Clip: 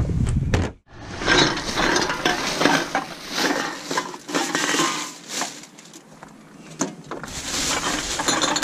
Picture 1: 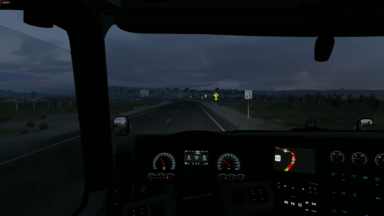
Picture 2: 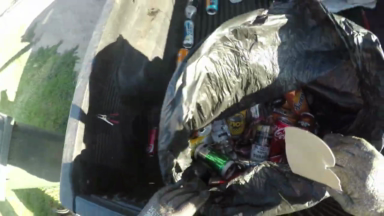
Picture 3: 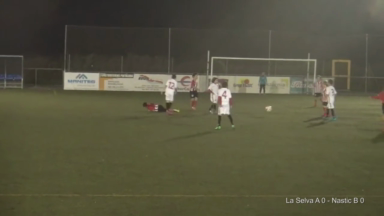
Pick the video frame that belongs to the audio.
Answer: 2